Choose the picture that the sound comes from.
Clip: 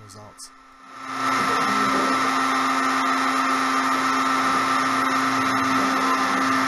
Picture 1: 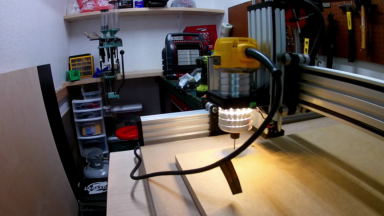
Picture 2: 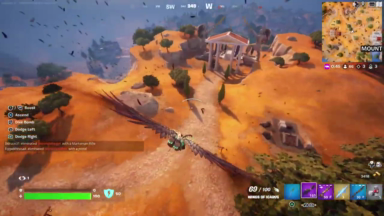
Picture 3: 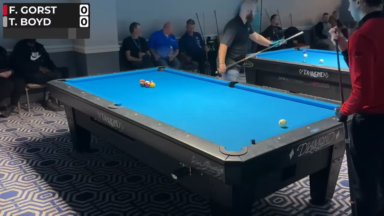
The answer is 1